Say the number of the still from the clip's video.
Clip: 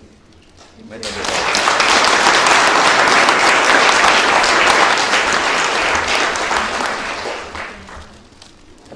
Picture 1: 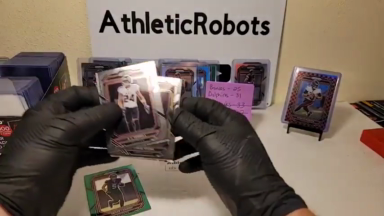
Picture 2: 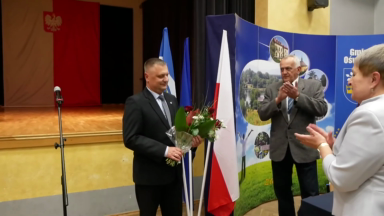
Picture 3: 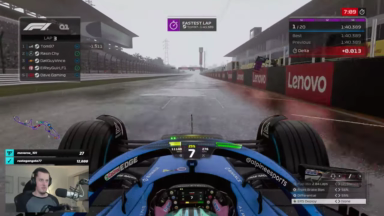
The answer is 2